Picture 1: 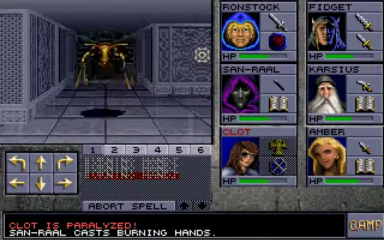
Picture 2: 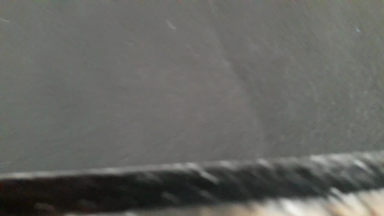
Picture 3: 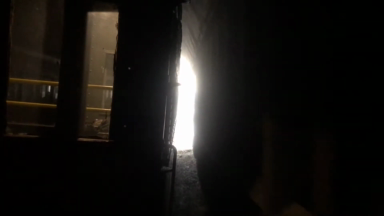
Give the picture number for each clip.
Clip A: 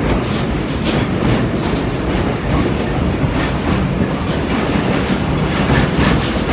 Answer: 3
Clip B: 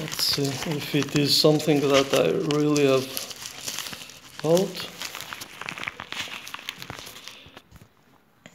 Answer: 2